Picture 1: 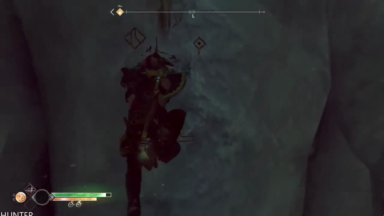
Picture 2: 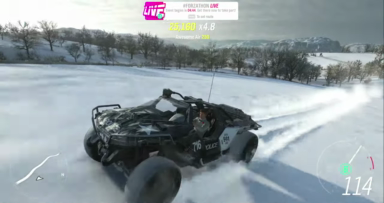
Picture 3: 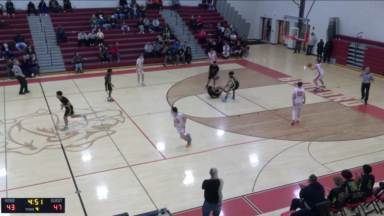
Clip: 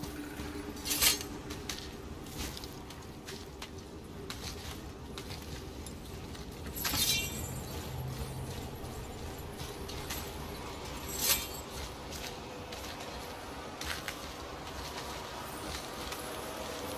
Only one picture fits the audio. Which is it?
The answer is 1